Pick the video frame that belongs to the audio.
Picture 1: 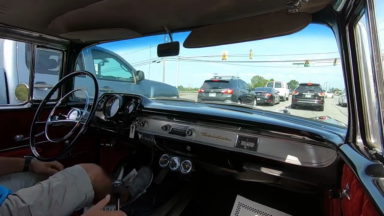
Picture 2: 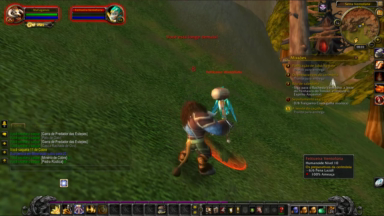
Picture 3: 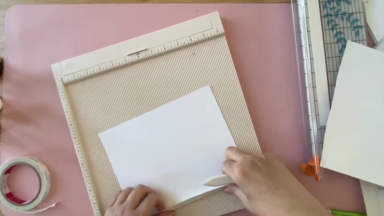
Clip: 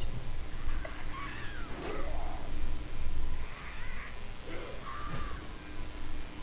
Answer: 2